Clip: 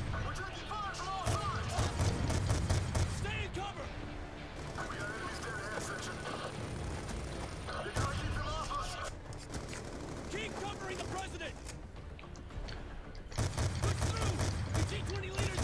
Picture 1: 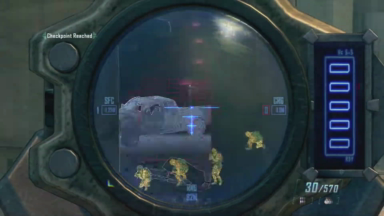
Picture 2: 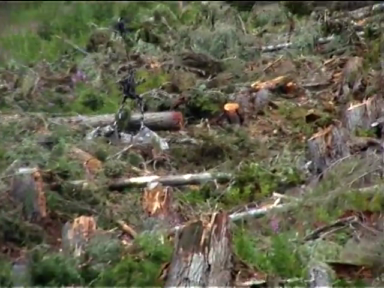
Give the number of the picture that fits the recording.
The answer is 1